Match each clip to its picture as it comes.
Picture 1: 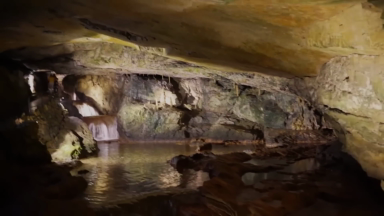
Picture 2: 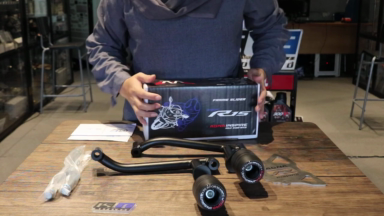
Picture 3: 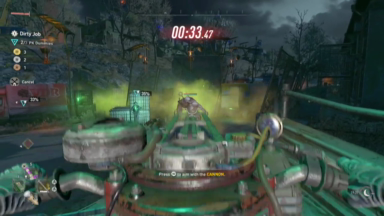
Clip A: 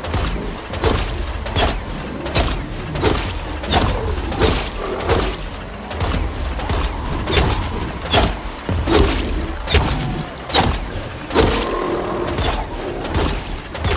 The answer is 3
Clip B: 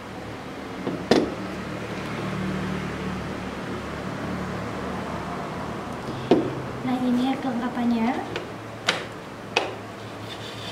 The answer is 2